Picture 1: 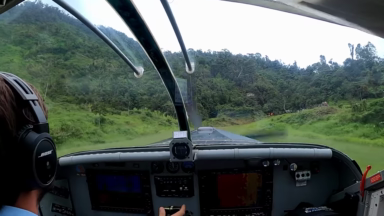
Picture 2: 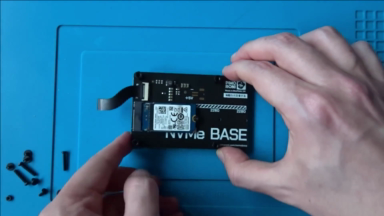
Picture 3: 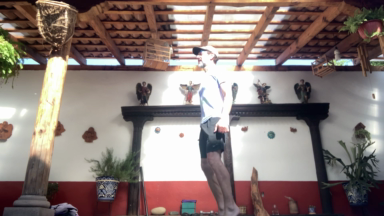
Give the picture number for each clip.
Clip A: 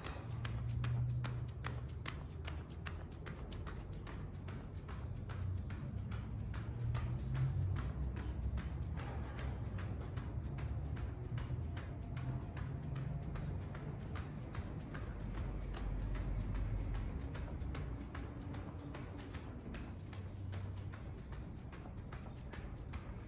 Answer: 3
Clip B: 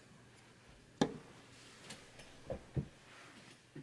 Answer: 2